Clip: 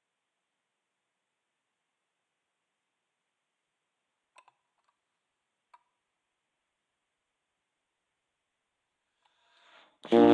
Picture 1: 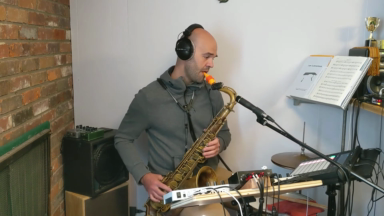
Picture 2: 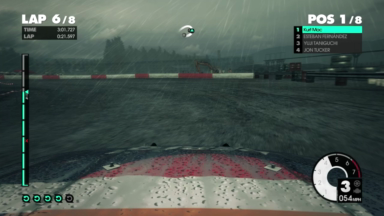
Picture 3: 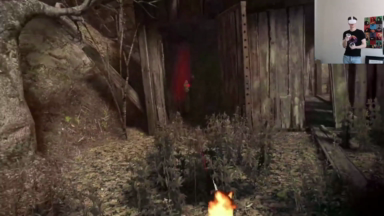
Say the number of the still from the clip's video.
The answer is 1